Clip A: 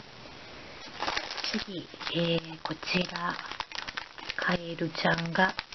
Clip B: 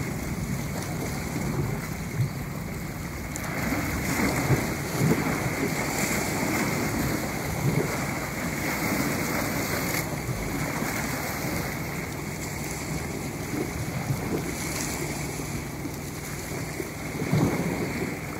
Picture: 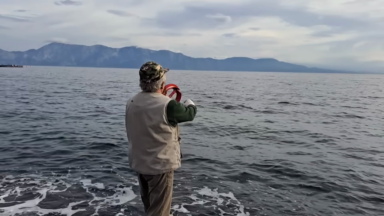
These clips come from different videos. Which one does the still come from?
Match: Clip B